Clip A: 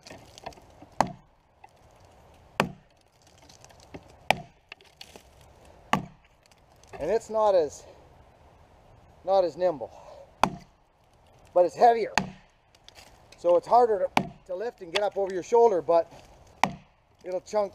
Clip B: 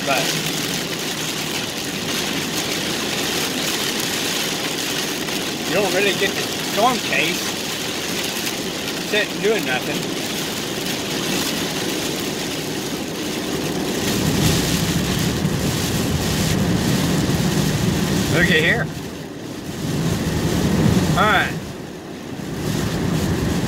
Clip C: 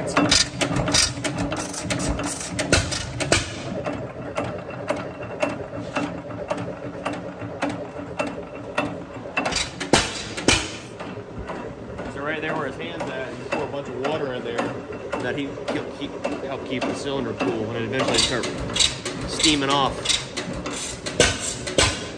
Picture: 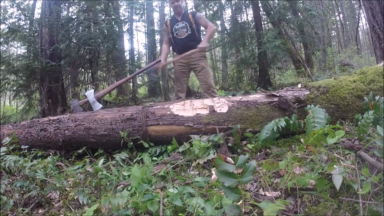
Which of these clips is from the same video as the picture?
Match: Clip A